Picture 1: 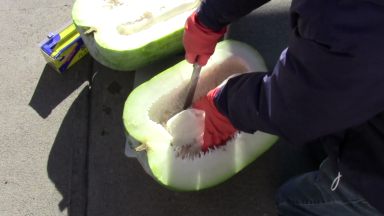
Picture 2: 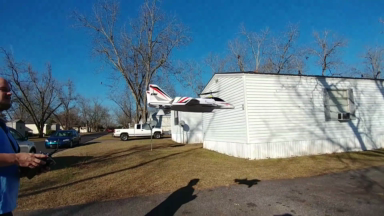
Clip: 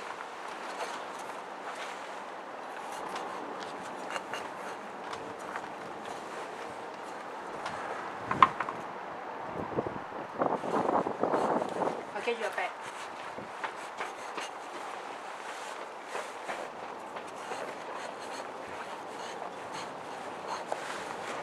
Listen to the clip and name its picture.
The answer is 1